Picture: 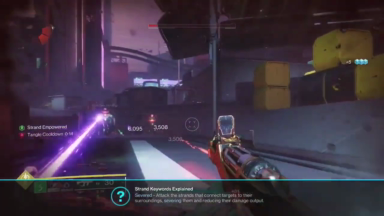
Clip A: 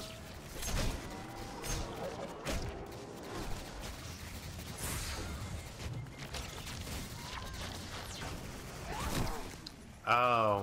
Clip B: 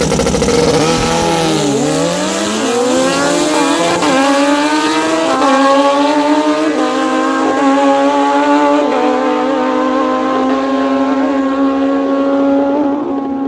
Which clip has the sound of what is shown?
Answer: A